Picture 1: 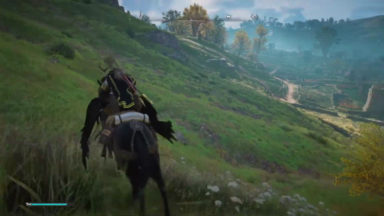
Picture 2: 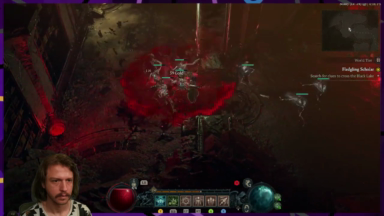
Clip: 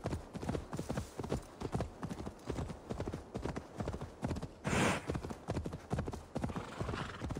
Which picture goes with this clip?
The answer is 1